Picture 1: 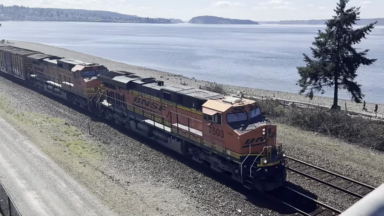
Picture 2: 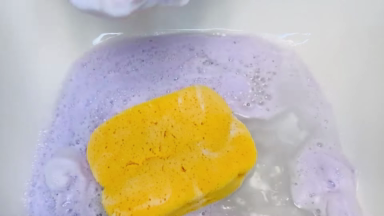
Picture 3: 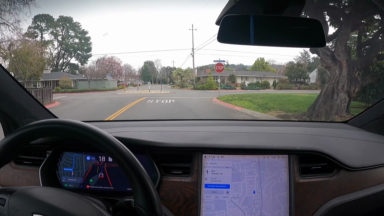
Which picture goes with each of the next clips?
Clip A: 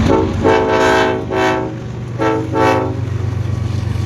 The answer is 1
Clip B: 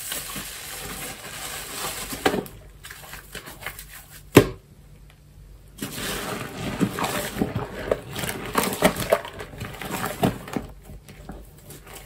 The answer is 2